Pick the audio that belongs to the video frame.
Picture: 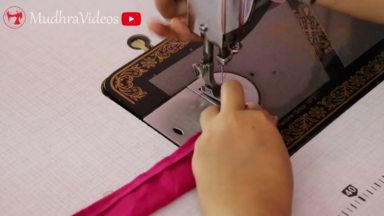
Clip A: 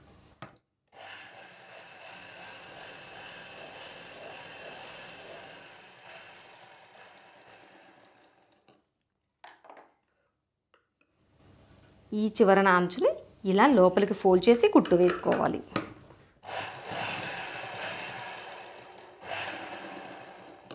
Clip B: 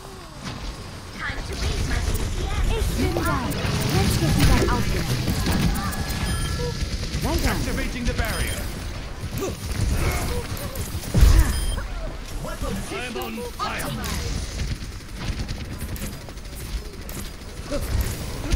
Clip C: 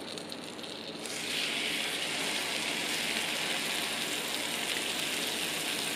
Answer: A